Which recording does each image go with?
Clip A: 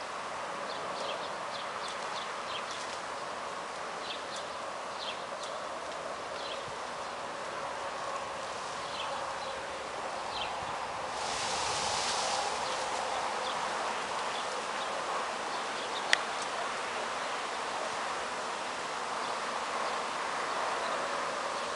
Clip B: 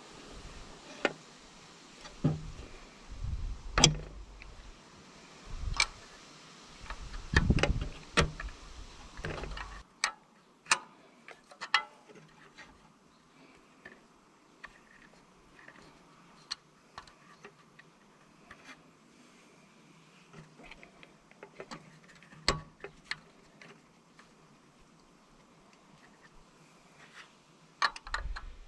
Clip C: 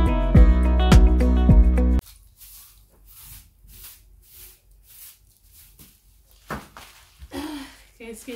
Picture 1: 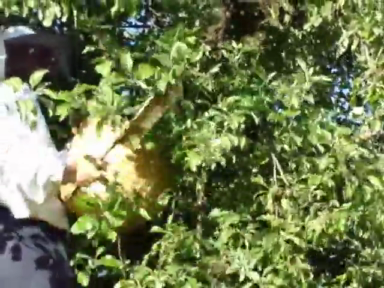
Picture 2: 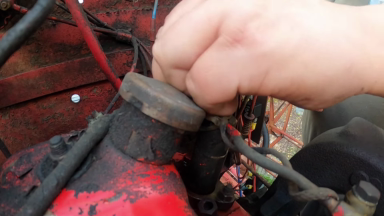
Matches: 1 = A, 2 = B